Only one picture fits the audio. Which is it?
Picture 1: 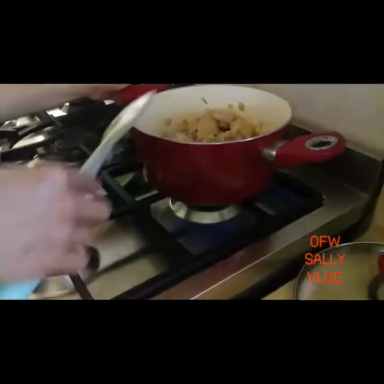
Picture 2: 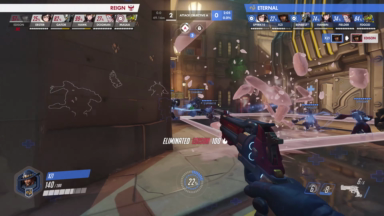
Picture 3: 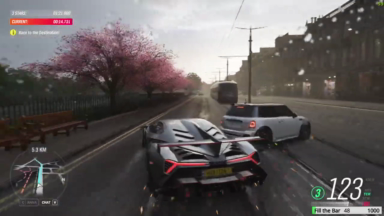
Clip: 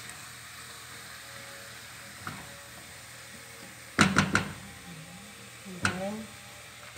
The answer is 1